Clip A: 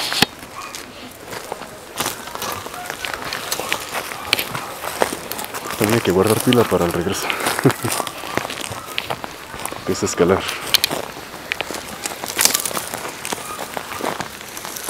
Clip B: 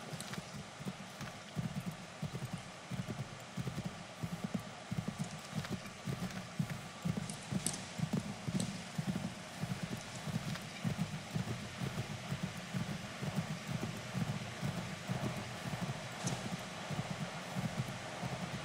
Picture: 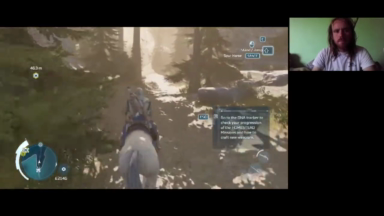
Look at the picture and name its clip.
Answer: B